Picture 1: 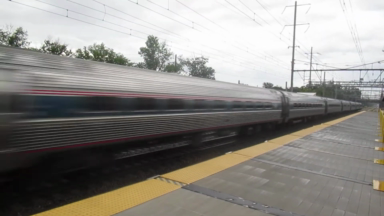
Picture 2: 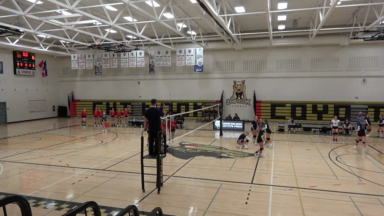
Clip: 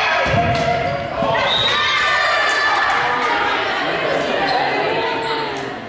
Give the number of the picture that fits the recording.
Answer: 2